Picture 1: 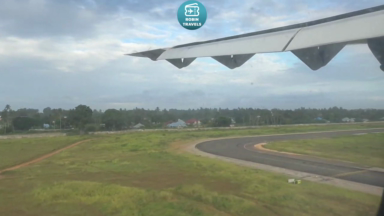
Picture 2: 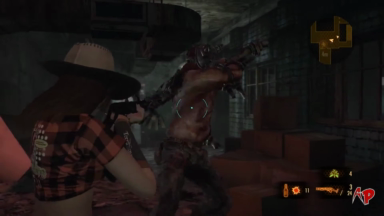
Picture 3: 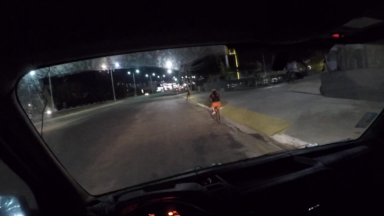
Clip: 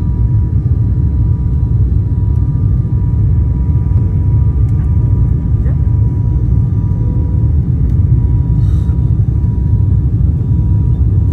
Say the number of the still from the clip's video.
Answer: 1